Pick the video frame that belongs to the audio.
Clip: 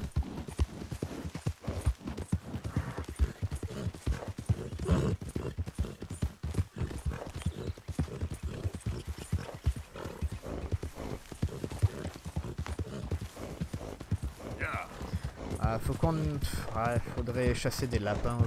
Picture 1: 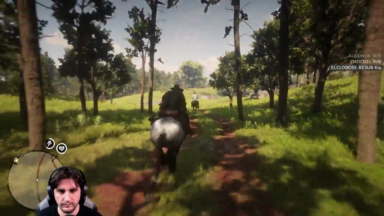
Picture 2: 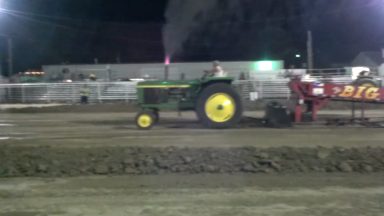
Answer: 1